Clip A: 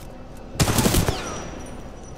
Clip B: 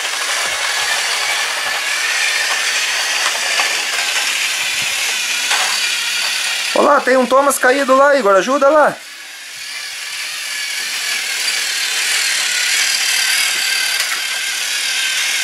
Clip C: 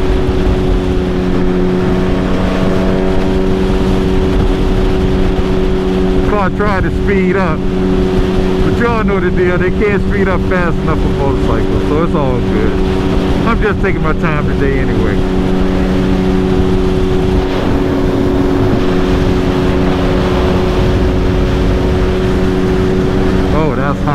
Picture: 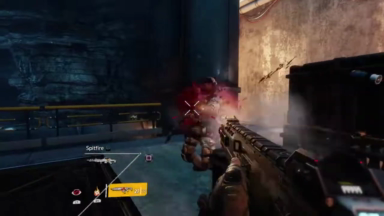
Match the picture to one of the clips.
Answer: A